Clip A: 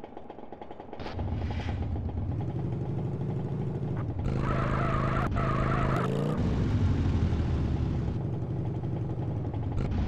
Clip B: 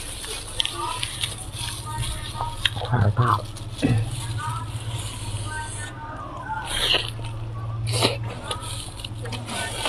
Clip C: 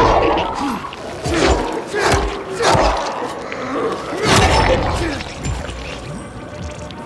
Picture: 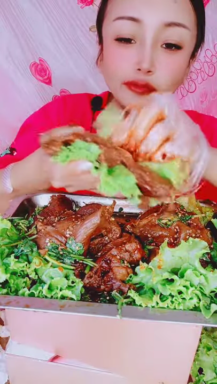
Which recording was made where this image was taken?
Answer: B